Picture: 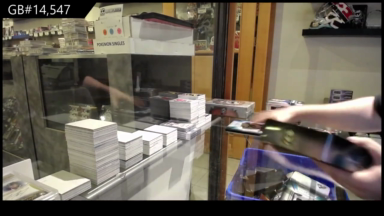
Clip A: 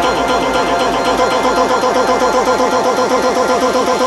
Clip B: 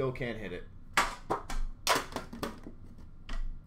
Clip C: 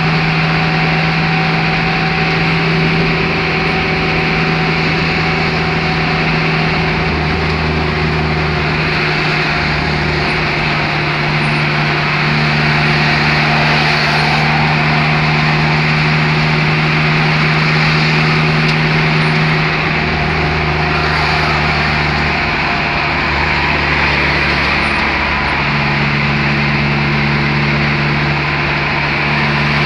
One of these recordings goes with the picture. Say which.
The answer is B